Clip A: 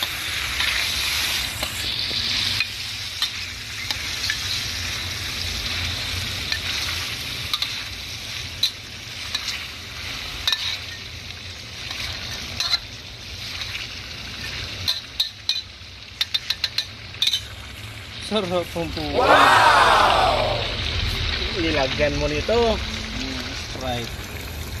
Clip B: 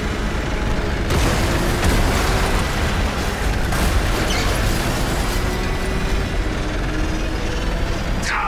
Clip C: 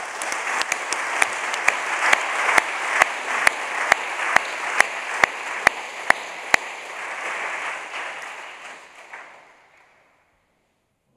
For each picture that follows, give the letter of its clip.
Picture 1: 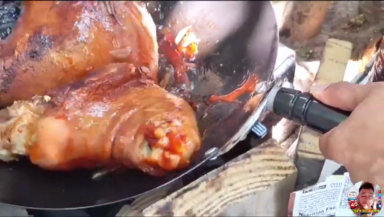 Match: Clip A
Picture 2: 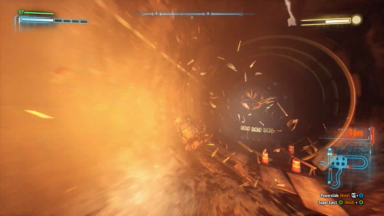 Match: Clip B